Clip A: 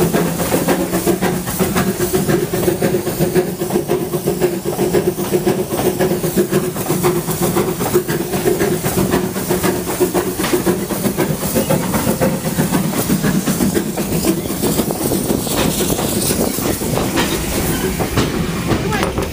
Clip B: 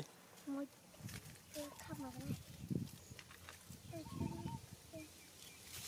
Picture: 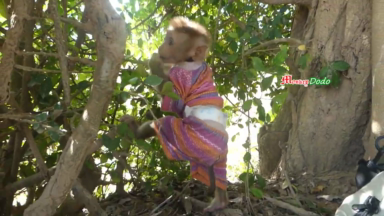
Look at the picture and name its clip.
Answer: B